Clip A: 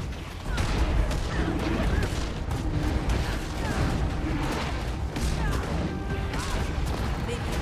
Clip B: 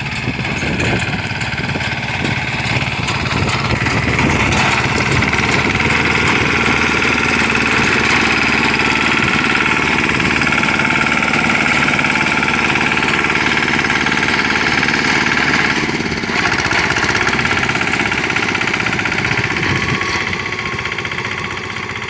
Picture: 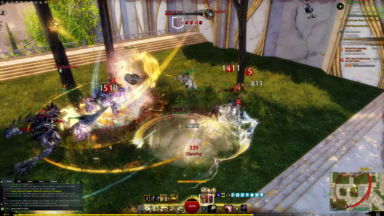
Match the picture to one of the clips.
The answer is A